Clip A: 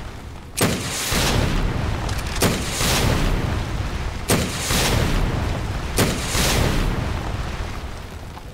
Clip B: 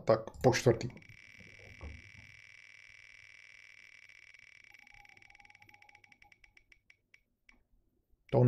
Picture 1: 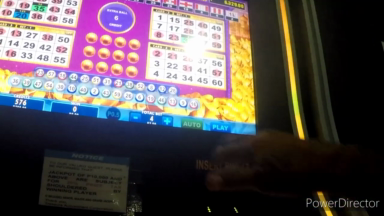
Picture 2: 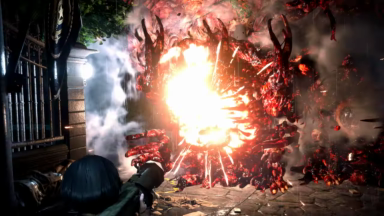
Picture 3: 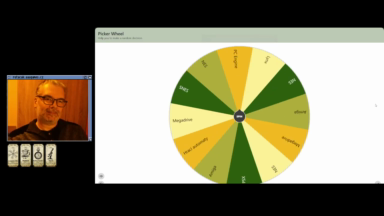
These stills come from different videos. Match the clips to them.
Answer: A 2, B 3